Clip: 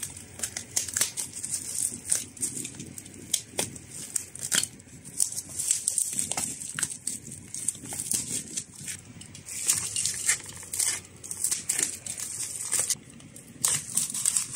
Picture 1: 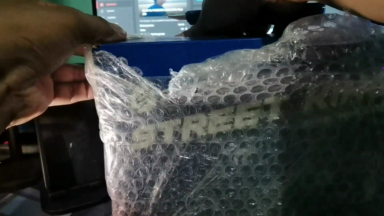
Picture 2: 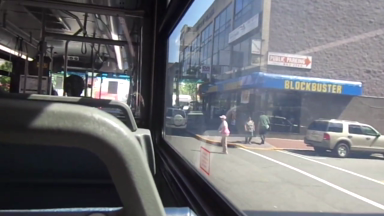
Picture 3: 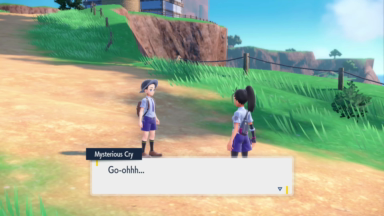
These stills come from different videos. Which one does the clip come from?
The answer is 1